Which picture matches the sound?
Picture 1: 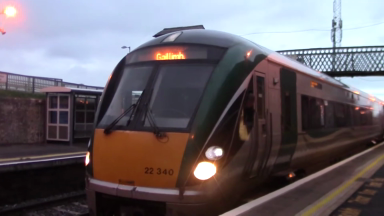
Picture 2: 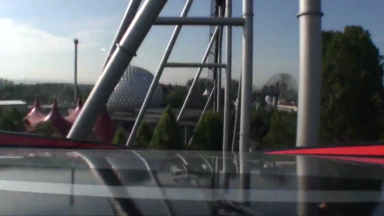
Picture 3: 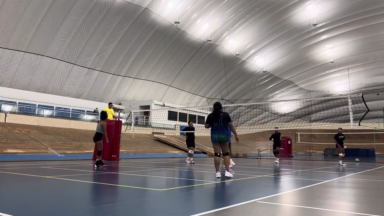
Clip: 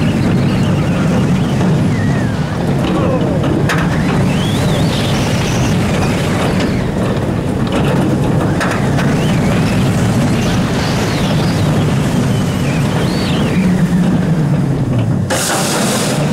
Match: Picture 2